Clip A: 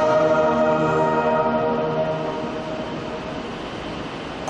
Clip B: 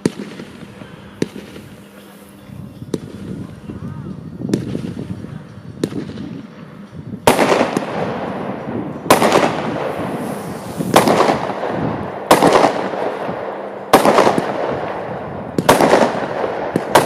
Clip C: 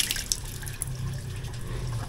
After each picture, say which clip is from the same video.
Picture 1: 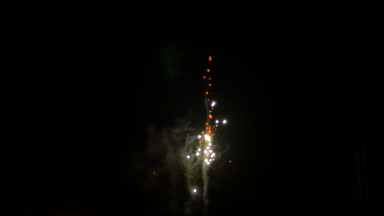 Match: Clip B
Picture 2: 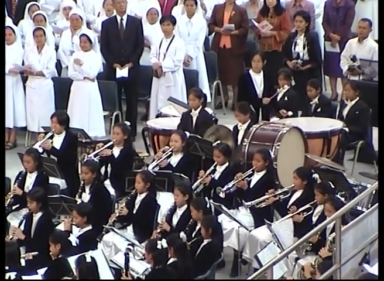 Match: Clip A